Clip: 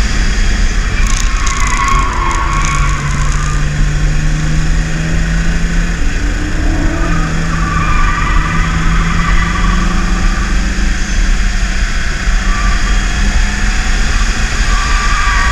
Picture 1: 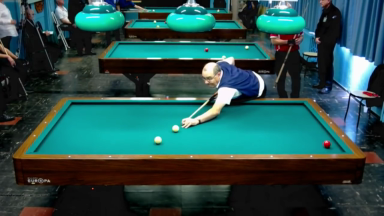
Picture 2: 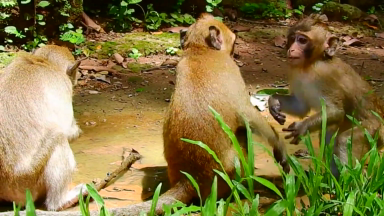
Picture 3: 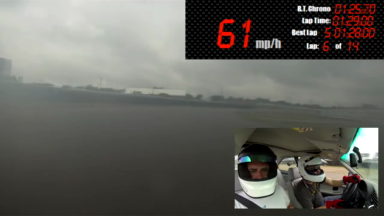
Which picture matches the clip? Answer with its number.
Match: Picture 3